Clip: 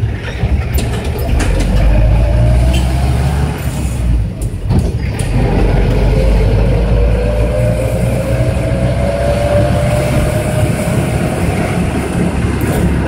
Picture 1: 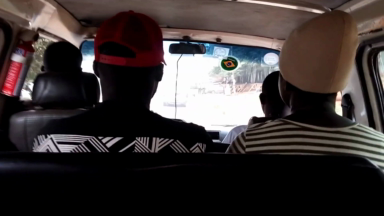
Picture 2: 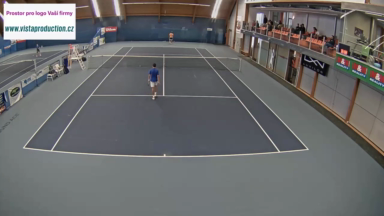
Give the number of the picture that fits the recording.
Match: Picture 1